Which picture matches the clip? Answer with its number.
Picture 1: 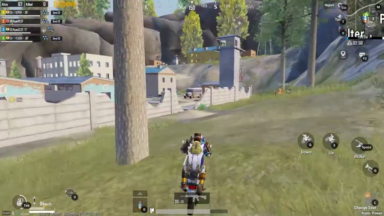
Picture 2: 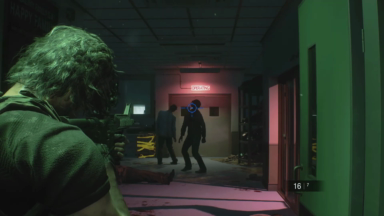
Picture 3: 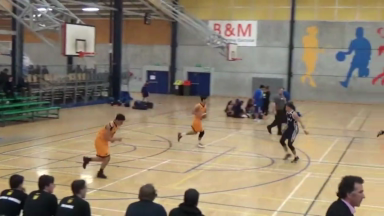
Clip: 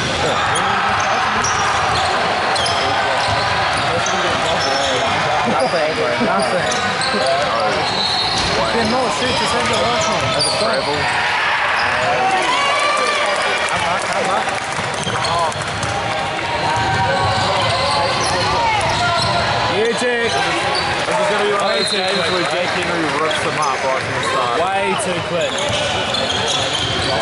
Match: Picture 3